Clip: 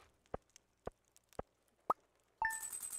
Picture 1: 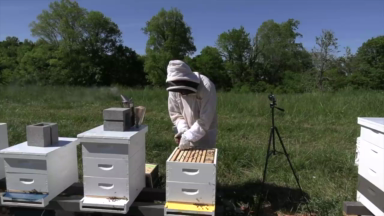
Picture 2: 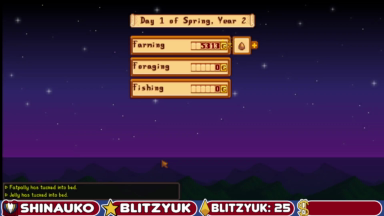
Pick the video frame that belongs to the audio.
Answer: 2